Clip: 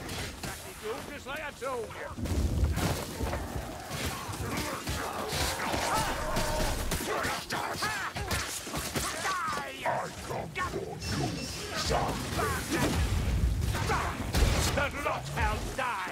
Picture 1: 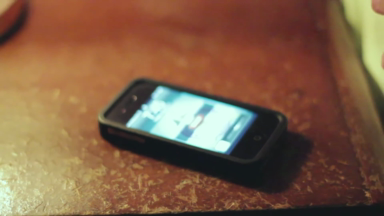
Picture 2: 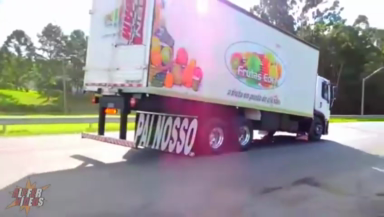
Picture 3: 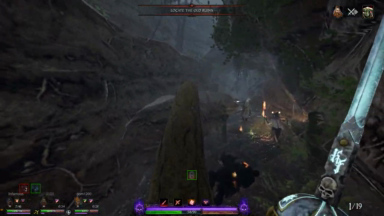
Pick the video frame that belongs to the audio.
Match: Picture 3